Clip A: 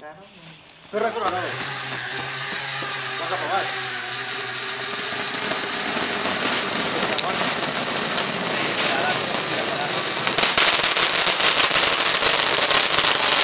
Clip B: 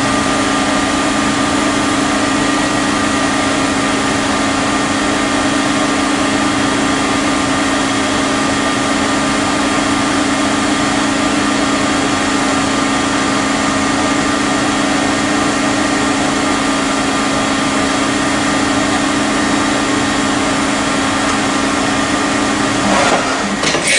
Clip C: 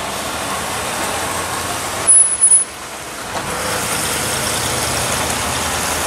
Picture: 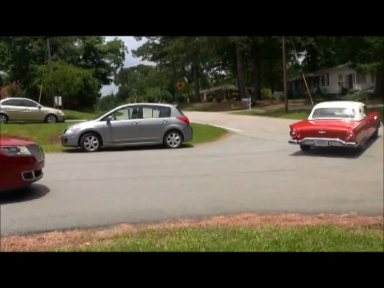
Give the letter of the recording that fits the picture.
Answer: C